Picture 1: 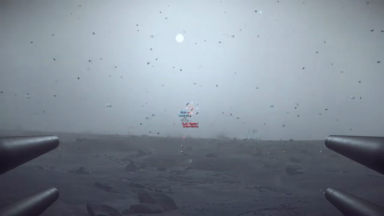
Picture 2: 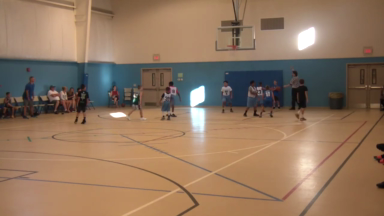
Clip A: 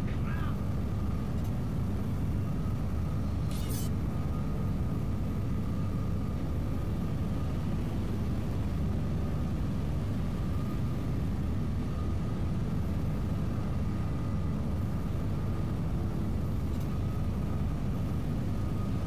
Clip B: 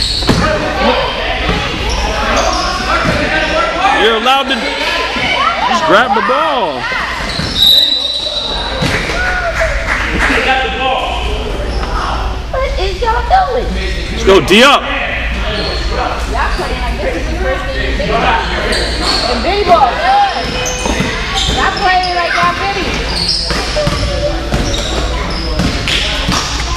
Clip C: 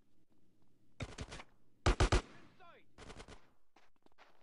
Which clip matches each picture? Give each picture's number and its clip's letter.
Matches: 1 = A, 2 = B